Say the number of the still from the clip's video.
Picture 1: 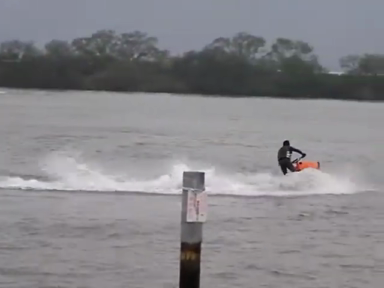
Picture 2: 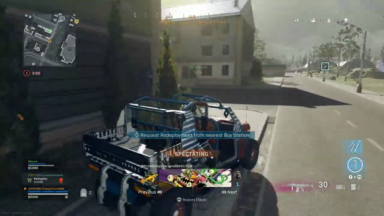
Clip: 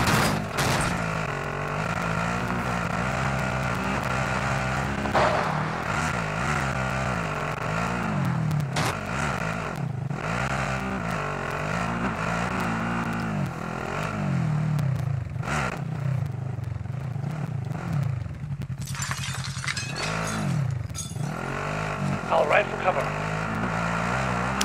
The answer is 2